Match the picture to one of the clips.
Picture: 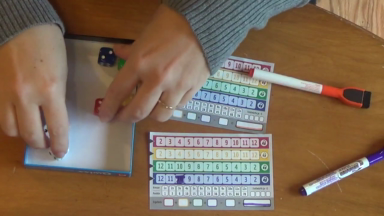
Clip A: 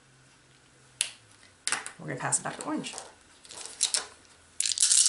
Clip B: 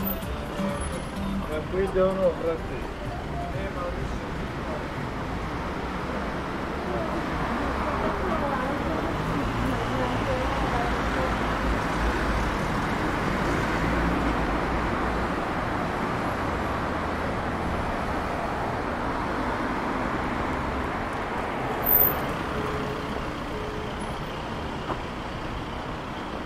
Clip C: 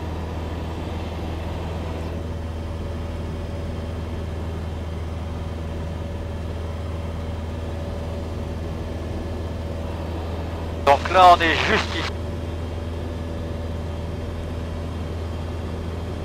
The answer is A